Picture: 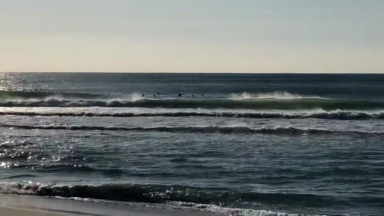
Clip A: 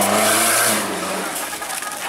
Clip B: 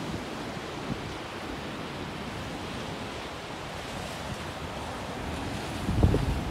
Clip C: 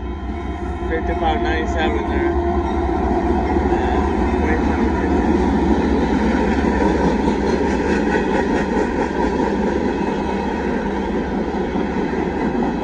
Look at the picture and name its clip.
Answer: B